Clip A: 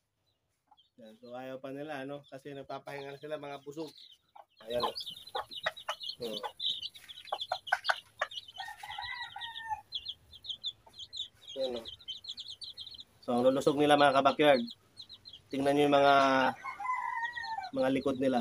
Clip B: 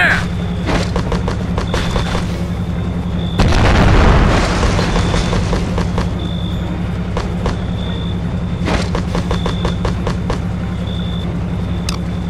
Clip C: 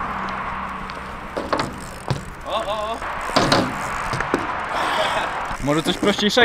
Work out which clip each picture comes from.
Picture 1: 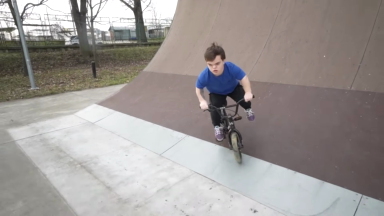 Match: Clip C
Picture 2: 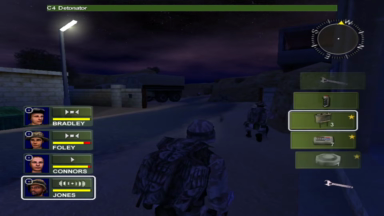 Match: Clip B